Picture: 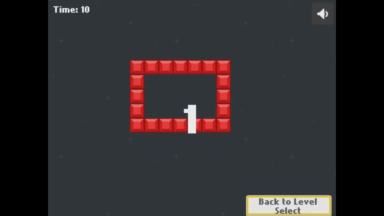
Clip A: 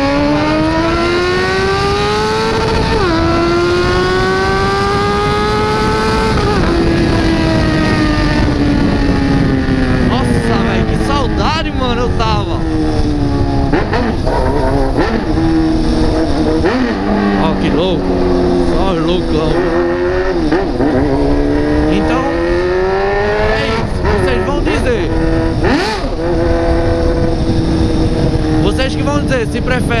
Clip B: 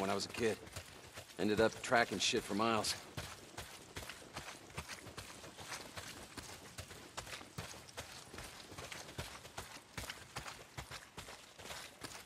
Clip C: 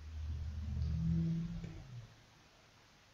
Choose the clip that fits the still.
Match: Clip C